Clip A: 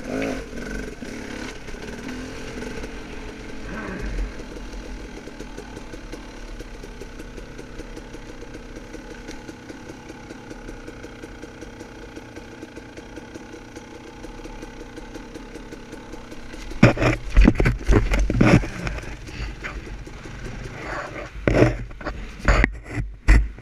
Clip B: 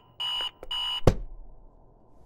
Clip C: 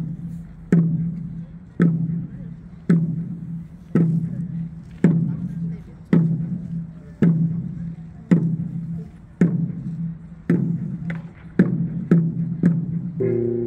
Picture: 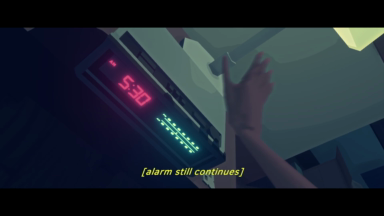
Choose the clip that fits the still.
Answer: B